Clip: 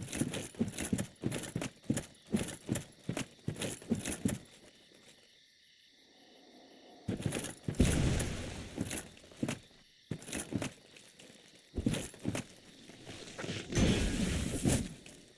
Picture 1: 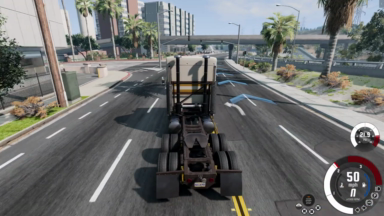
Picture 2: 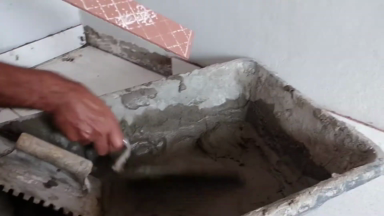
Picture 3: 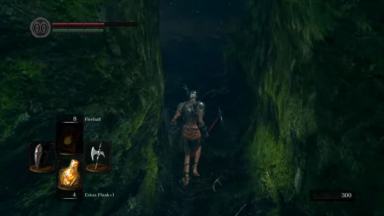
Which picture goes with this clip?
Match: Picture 3